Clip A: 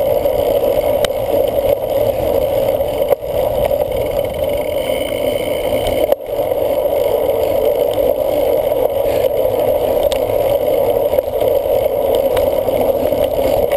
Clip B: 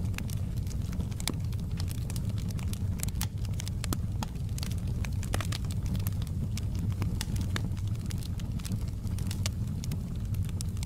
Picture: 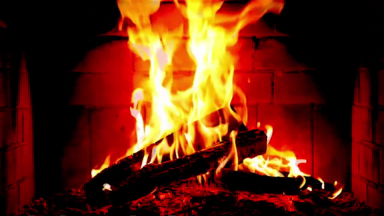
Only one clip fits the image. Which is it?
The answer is B